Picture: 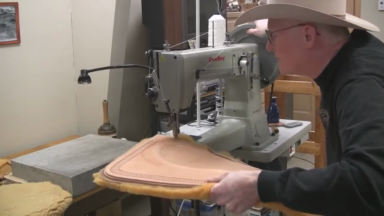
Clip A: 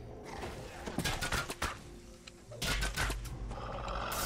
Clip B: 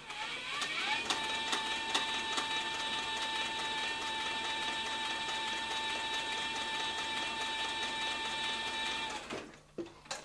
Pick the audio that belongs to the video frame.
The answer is B